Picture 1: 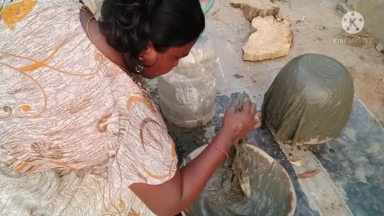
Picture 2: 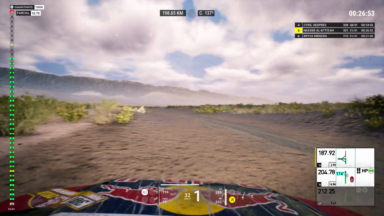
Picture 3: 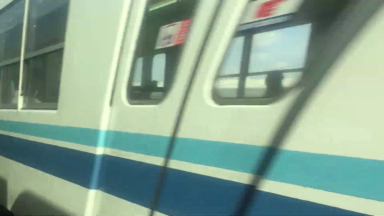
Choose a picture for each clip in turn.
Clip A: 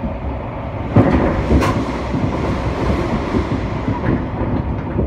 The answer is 3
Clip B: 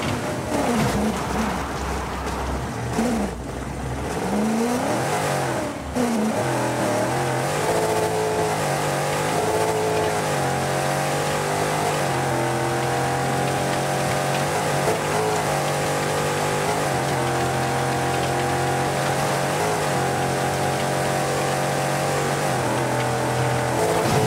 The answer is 2